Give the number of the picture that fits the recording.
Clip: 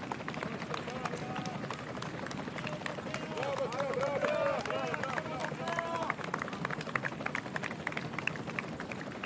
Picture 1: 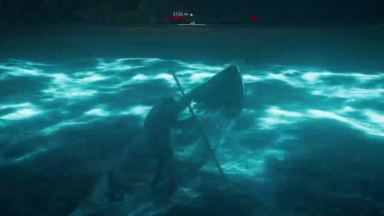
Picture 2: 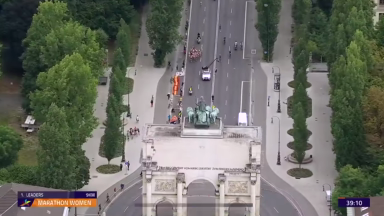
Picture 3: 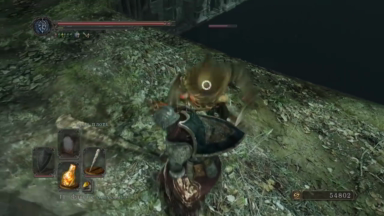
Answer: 2